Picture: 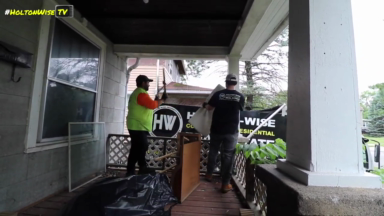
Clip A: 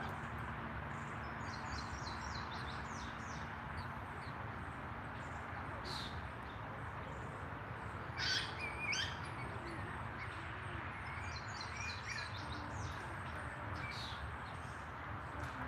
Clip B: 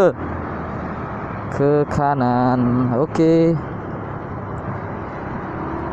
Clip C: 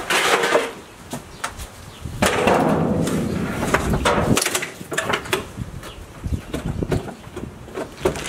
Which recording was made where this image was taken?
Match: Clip C